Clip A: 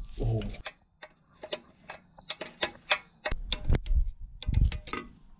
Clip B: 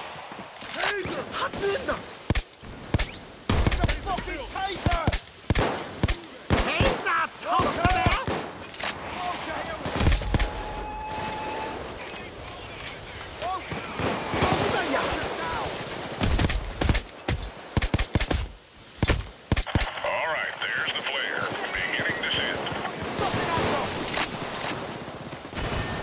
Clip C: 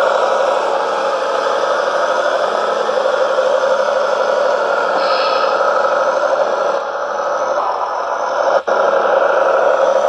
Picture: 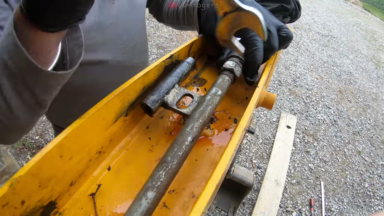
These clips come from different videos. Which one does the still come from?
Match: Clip A